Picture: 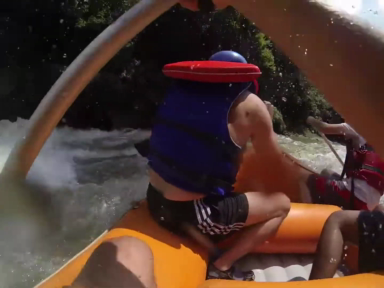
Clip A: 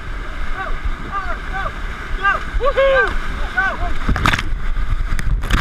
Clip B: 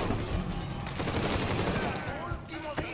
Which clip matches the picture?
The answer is A